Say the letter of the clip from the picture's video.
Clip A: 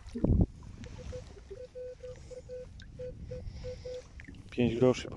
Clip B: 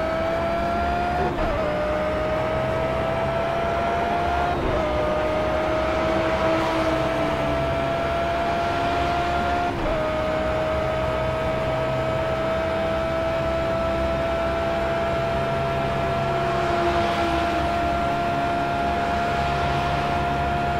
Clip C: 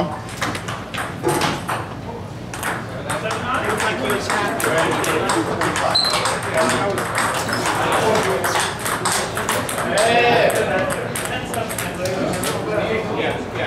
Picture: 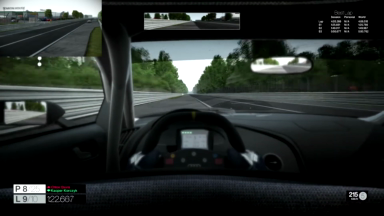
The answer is B